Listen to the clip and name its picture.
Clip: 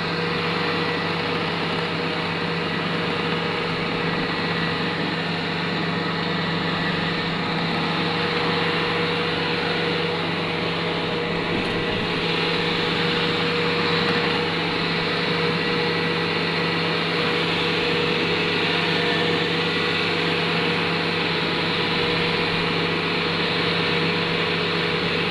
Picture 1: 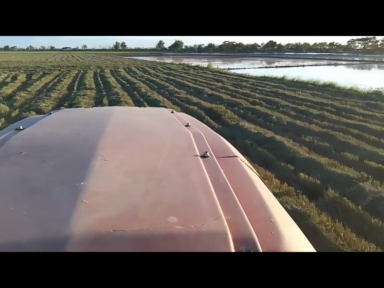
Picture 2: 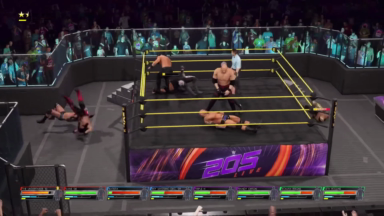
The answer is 1